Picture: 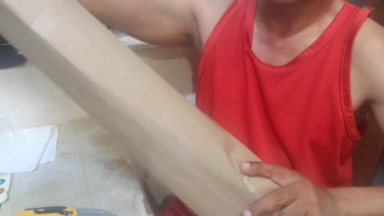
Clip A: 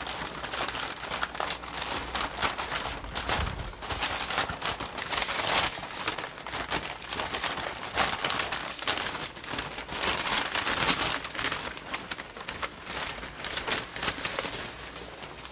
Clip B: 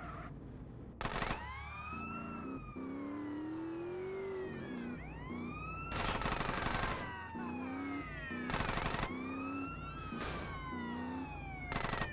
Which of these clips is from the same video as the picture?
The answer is A